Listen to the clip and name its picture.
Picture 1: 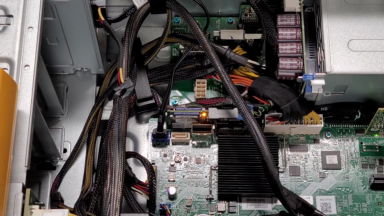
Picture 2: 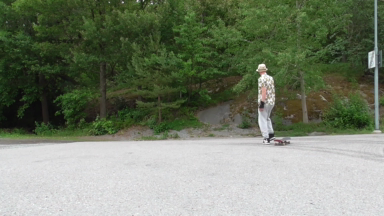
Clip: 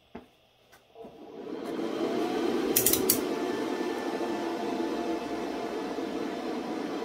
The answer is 1